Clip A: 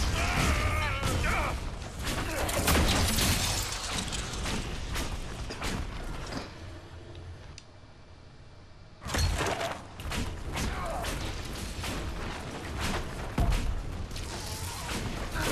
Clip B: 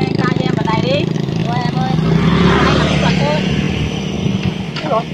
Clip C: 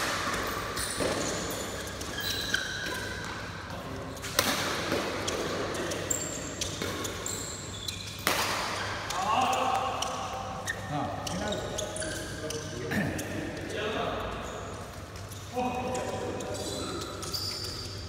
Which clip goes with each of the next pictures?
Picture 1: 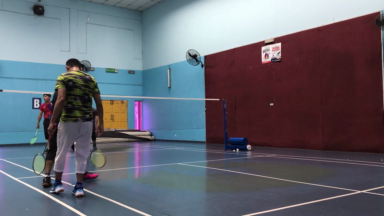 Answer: C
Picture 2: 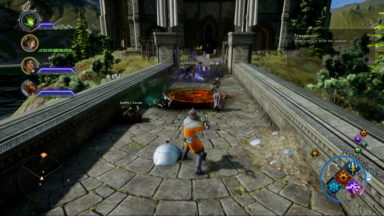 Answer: A